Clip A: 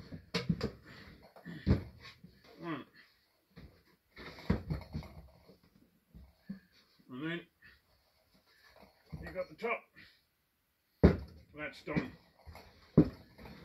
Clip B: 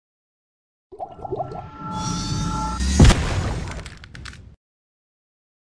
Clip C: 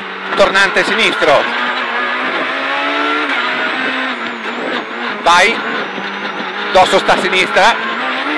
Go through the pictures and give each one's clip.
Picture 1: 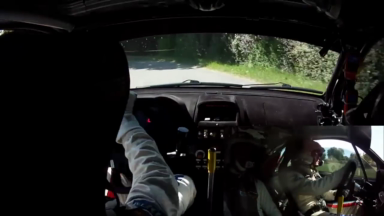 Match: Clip C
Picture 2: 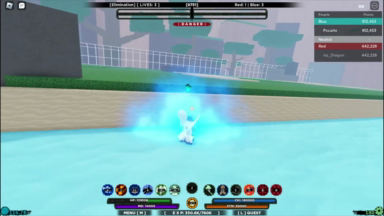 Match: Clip B